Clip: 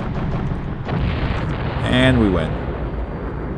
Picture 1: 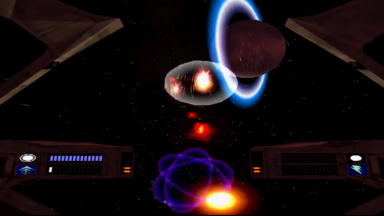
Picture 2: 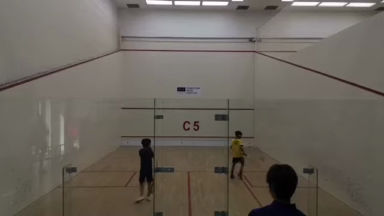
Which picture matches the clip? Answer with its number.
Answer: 1